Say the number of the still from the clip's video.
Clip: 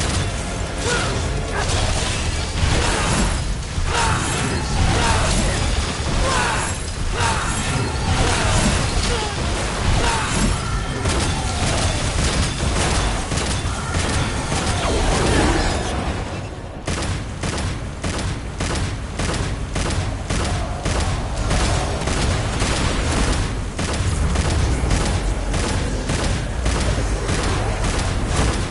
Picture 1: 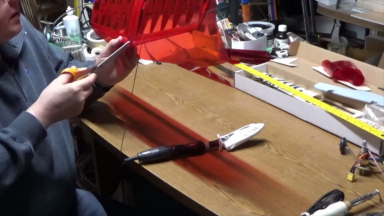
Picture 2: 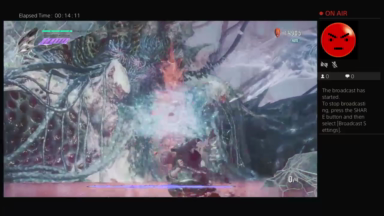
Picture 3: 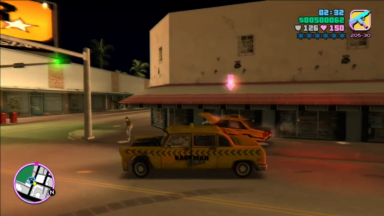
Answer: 2